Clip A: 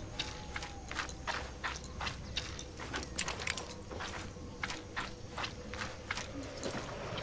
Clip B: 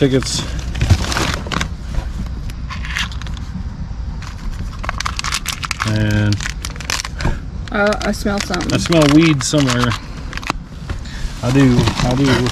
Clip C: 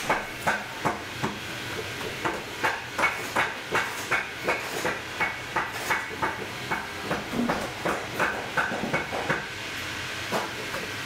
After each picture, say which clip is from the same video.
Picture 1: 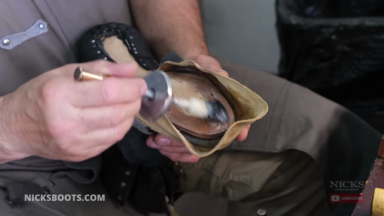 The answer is C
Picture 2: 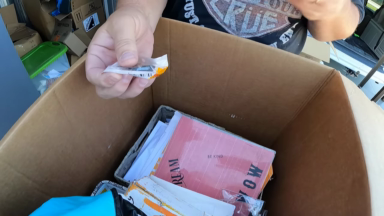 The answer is B